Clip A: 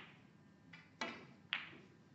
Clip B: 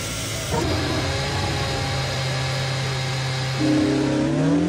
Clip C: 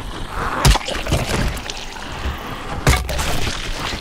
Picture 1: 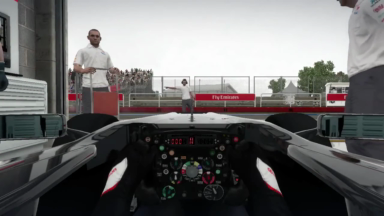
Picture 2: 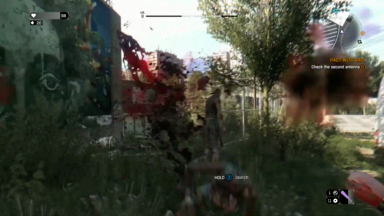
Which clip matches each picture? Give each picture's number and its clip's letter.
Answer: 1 B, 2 C